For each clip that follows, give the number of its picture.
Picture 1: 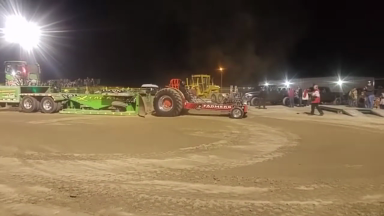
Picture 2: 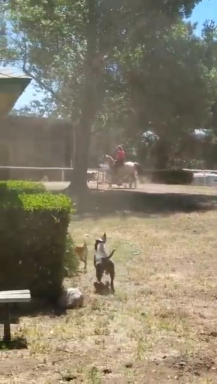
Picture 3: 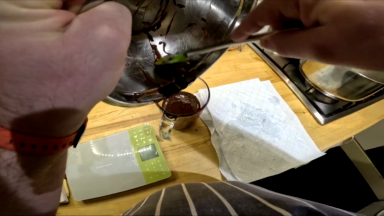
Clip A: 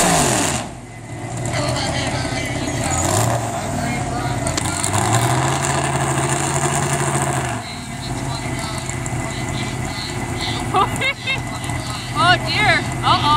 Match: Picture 1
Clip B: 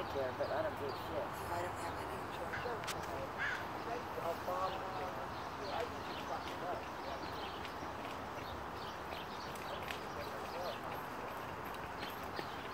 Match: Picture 2